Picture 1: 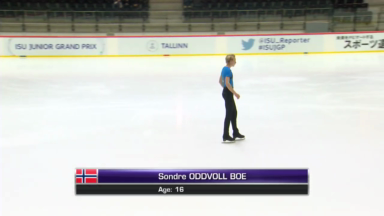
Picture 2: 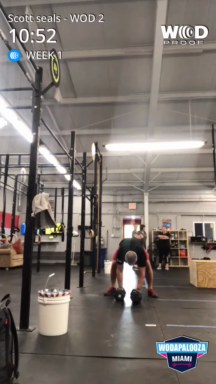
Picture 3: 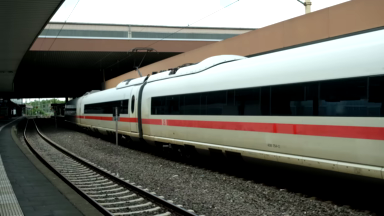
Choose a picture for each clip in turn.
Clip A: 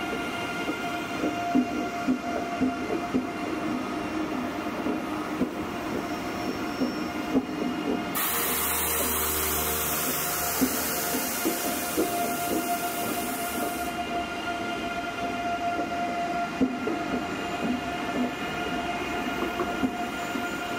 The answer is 3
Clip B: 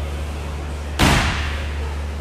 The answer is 2